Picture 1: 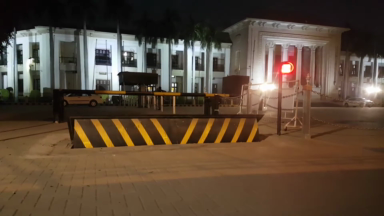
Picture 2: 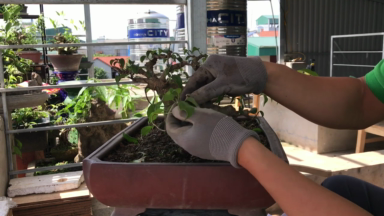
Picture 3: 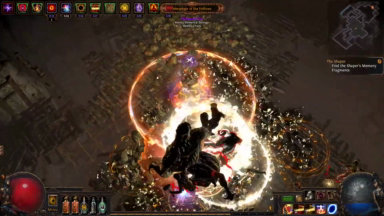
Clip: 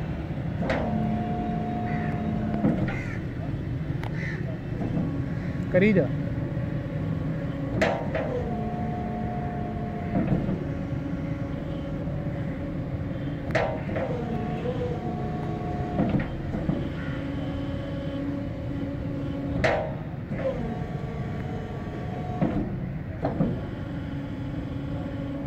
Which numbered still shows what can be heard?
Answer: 1